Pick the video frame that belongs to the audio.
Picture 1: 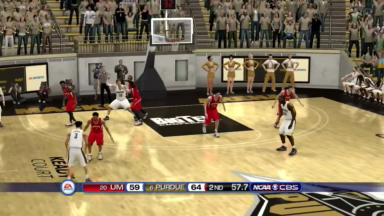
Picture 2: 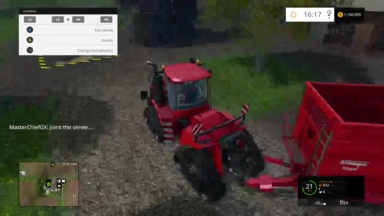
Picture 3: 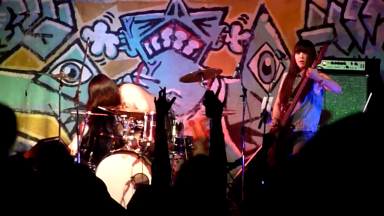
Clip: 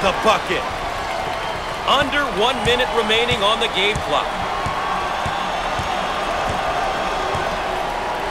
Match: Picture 1